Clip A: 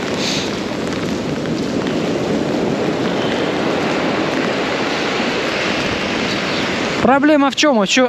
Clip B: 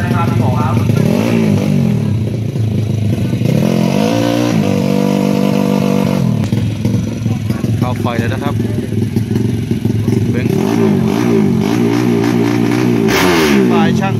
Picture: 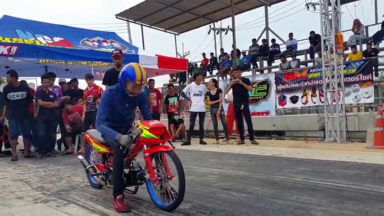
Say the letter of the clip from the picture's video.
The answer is B